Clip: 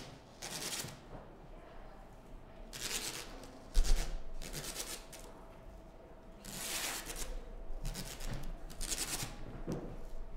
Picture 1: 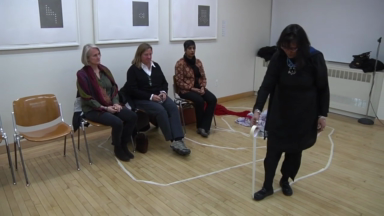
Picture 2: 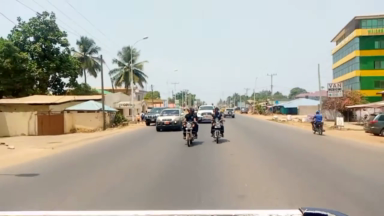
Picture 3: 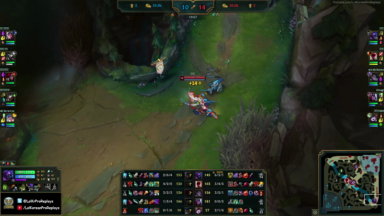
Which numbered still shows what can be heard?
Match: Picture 1